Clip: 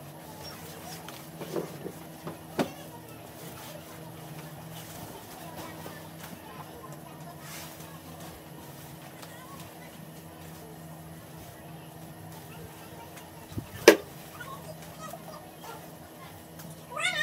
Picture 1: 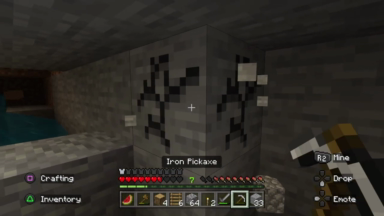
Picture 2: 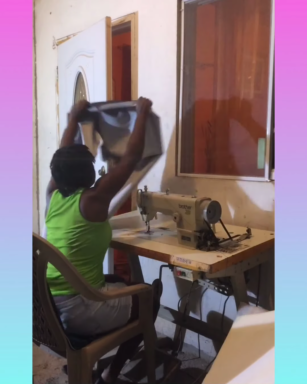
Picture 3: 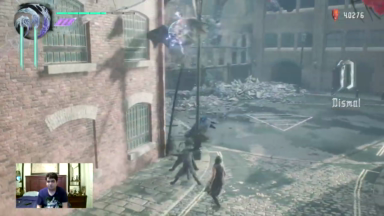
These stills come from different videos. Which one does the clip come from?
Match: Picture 2